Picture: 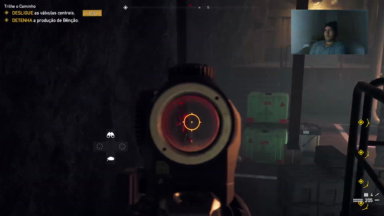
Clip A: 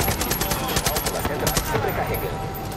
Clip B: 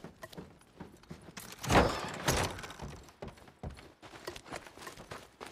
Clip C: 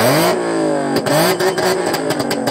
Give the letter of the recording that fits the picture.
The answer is A